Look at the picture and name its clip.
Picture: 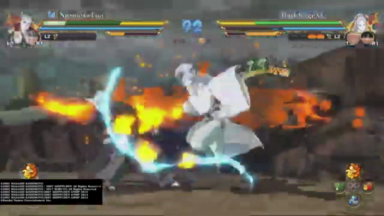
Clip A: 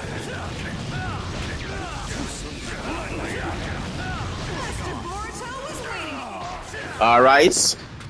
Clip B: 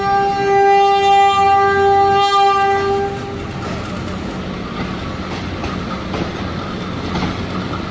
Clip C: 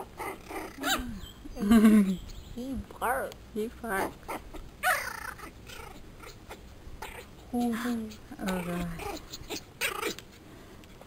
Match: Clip A